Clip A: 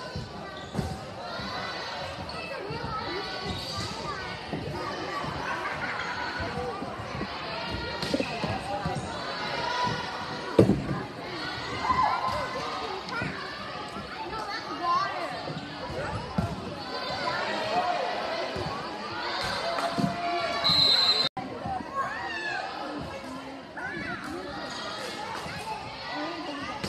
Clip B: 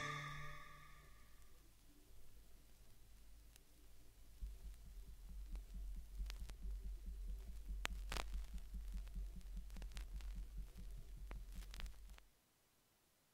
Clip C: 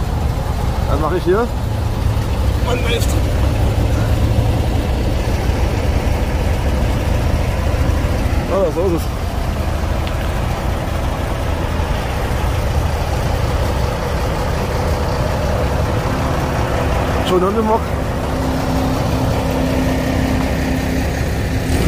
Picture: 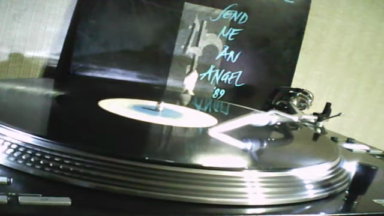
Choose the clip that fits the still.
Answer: B